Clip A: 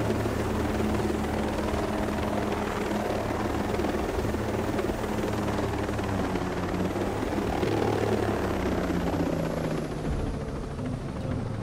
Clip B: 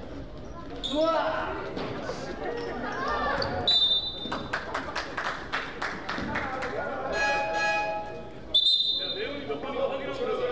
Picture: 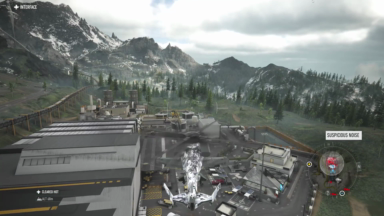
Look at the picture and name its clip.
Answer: A